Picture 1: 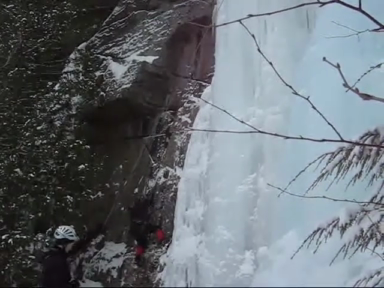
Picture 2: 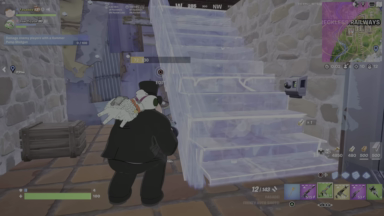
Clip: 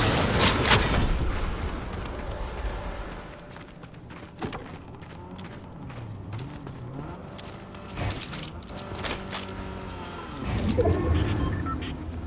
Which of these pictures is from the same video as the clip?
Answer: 2